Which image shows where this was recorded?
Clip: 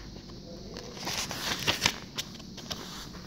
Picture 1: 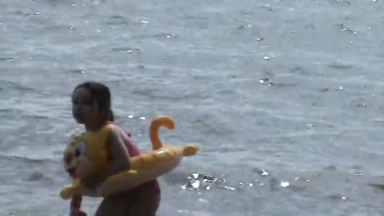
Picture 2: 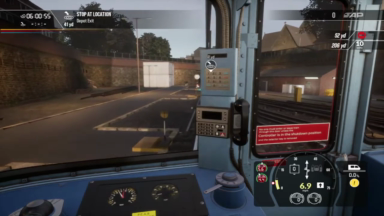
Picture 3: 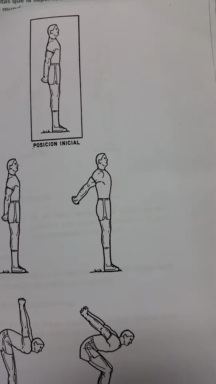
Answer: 3